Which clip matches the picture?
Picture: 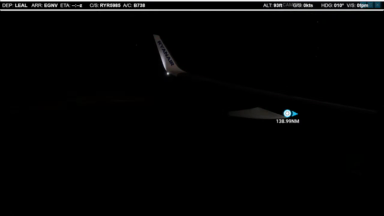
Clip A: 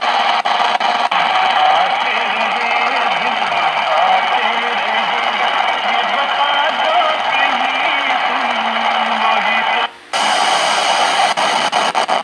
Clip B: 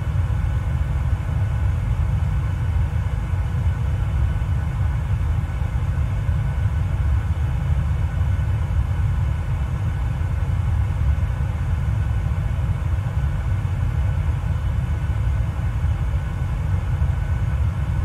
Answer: B